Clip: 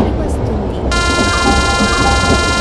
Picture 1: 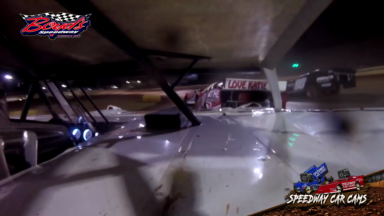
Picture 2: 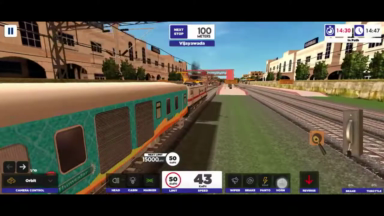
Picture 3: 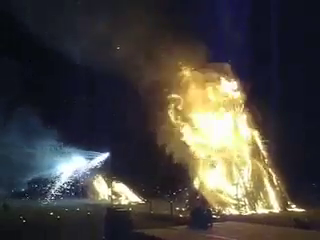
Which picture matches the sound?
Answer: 2